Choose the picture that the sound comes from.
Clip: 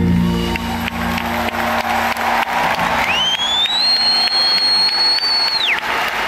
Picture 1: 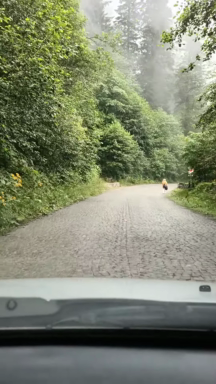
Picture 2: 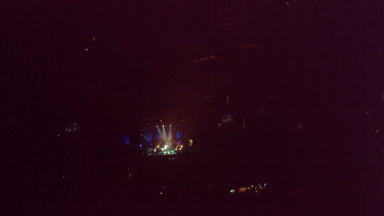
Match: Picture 2